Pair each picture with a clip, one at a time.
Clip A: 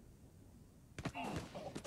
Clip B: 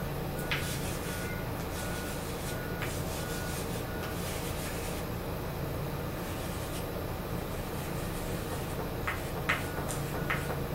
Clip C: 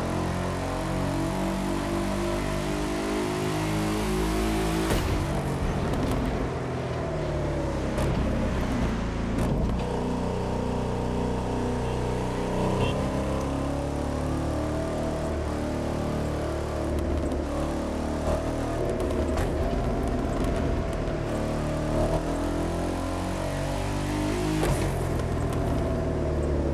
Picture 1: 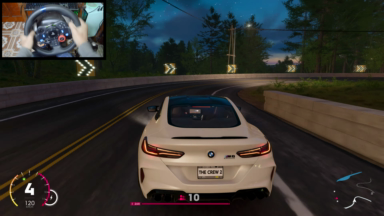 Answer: C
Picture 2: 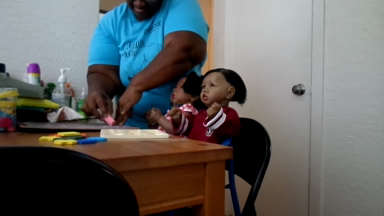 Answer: B